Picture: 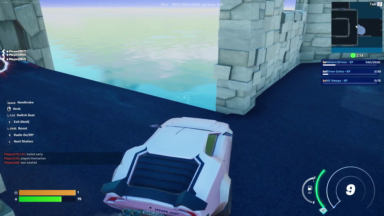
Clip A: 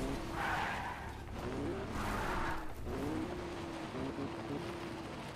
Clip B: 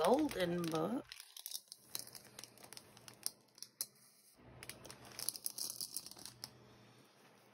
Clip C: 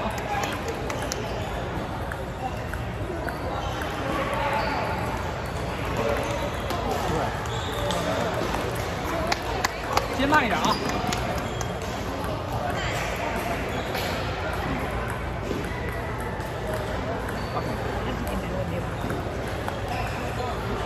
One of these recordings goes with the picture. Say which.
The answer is A